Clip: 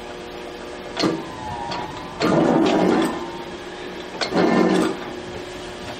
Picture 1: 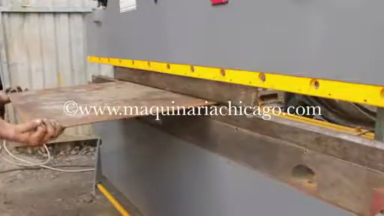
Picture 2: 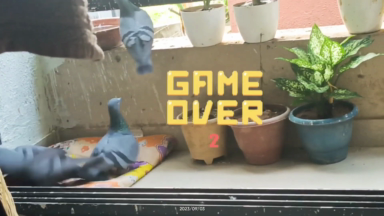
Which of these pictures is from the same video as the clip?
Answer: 1